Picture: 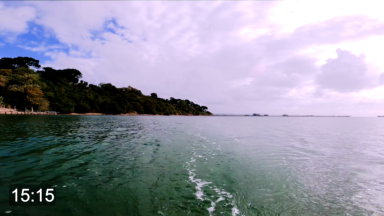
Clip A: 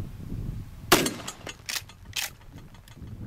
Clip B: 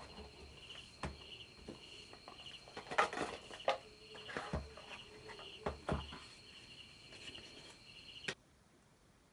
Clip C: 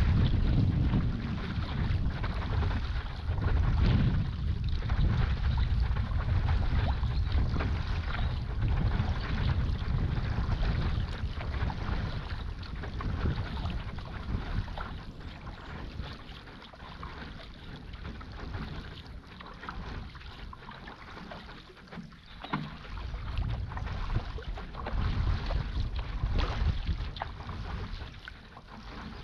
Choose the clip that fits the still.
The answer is C